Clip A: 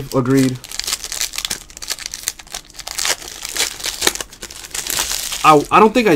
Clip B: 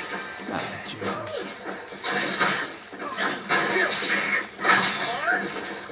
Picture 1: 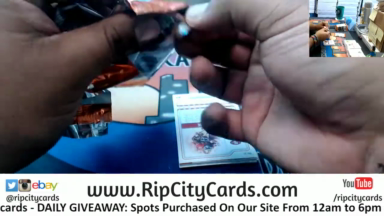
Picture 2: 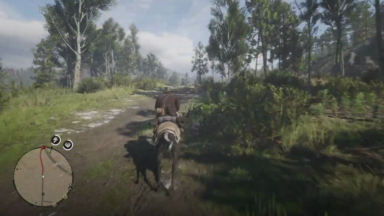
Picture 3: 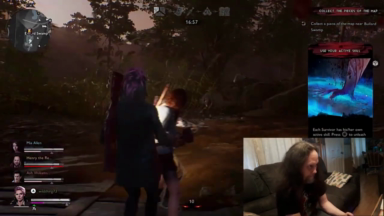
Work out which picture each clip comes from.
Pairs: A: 1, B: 3